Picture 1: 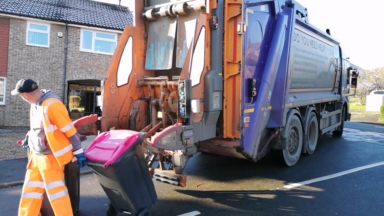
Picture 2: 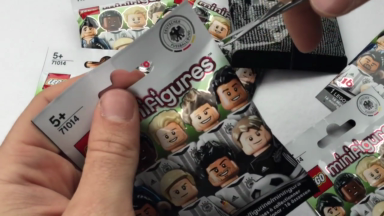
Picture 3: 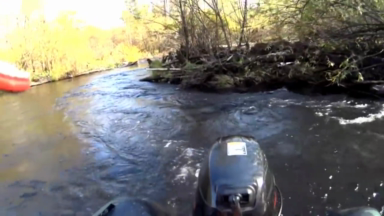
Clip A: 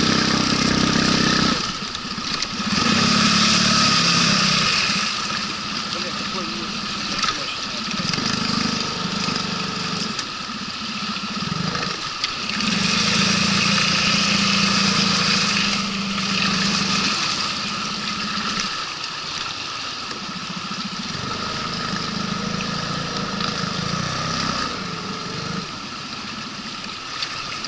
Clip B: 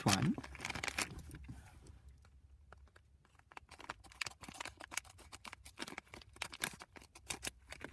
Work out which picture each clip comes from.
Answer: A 3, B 2